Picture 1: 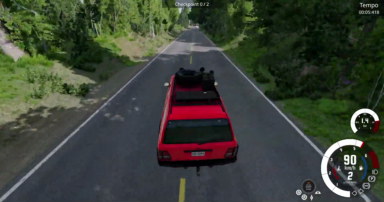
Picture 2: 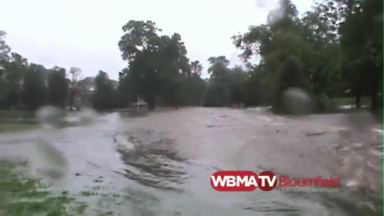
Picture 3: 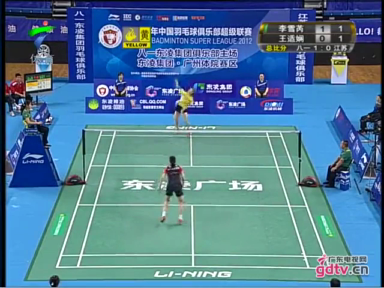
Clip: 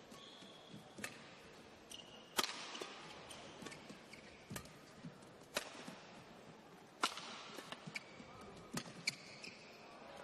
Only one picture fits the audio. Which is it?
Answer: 3